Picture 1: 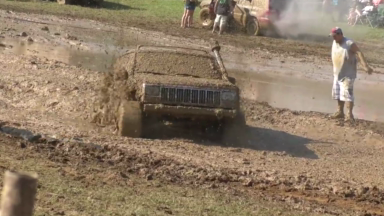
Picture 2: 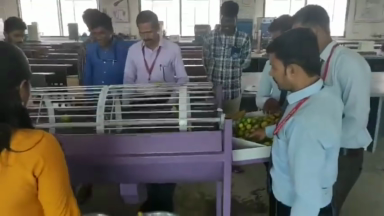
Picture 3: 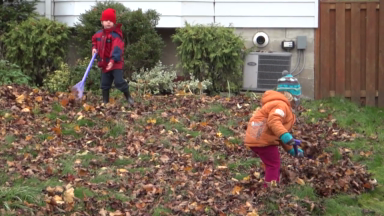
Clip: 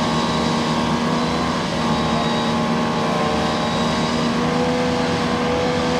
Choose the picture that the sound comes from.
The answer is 1